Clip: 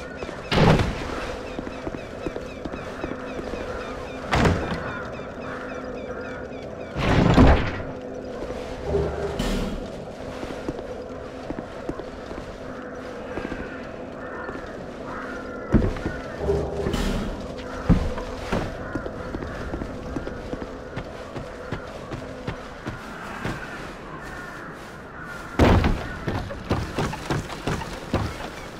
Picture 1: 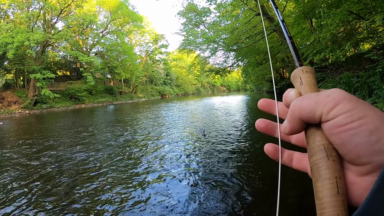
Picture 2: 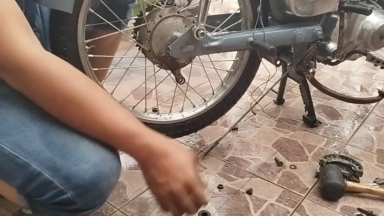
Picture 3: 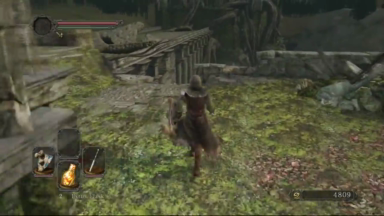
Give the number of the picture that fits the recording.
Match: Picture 3